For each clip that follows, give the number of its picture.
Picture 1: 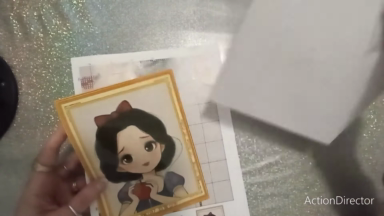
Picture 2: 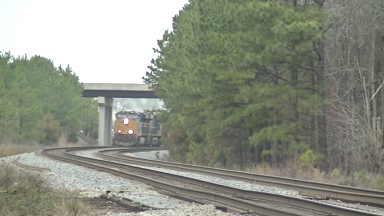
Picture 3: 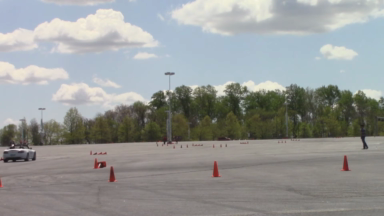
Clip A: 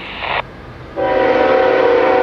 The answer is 2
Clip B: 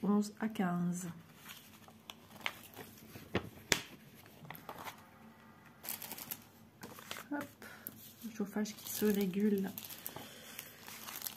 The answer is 1